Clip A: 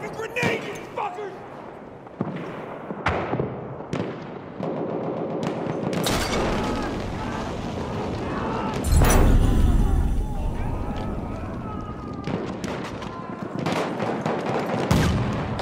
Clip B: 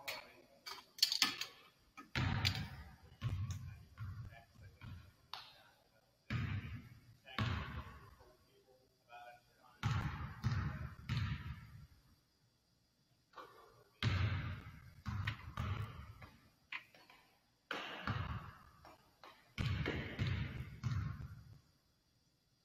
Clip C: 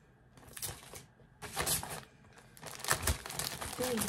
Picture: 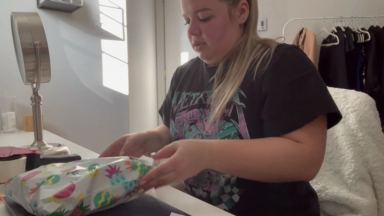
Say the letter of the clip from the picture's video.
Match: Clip C